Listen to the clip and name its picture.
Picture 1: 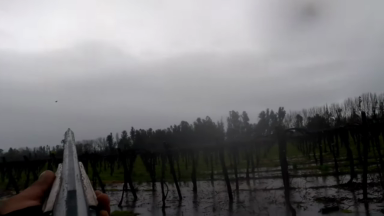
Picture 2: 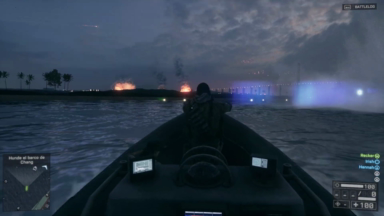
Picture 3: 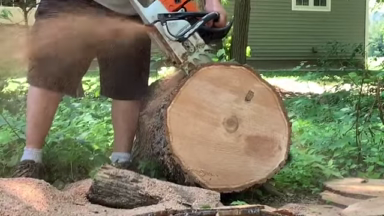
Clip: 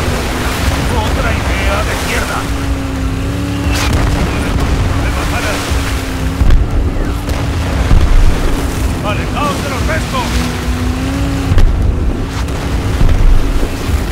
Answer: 2